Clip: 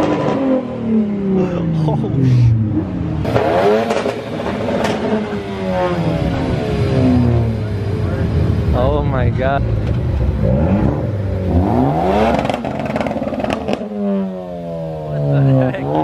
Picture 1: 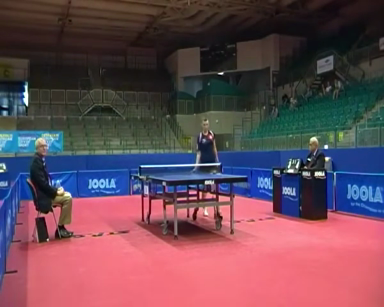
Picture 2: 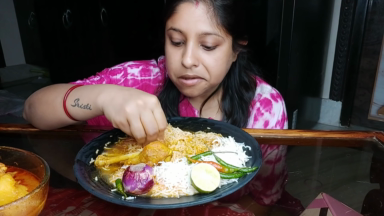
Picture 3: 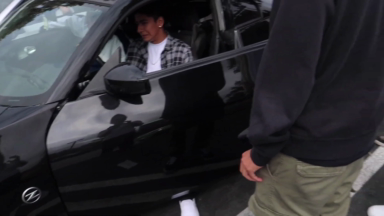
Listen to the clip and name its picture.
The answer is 3